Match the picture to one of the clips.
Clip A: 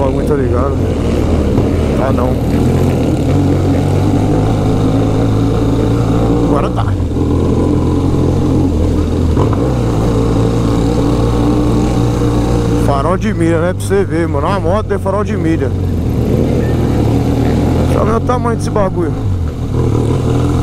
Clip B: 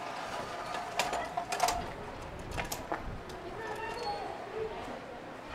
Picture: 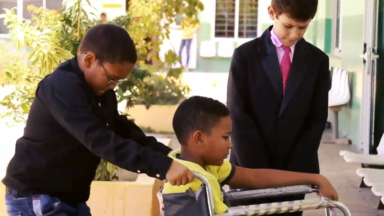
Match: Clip B